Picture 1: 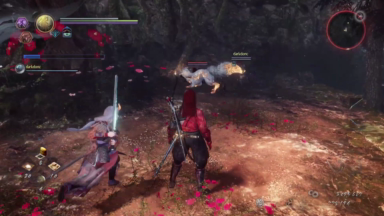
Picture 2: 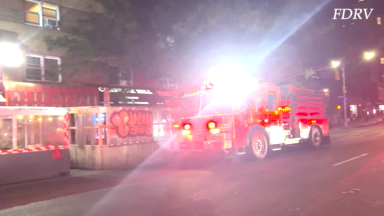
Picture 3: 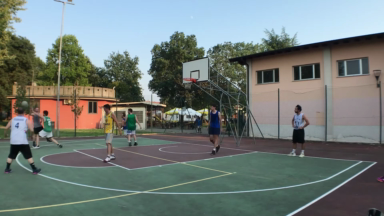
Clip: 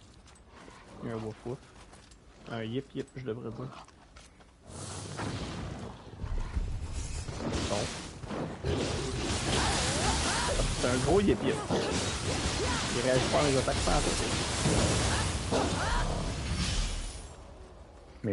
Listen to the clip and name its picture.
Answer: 1